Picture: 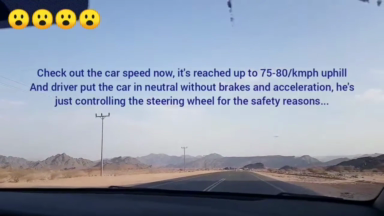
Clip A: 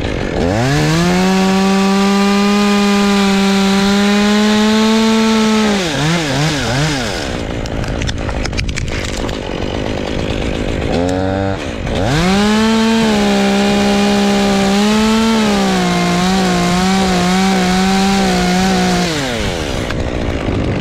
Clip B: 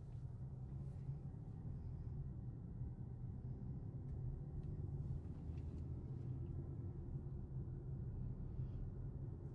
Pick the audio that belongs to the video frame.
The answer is B